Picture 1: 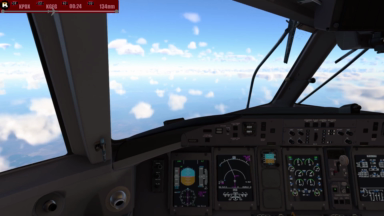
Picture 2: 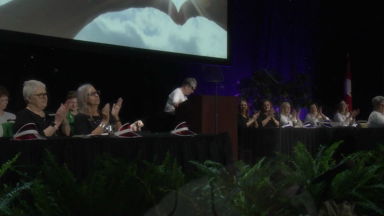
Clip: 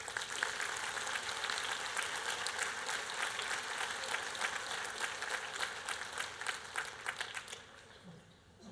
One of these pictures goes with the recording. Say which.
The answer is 2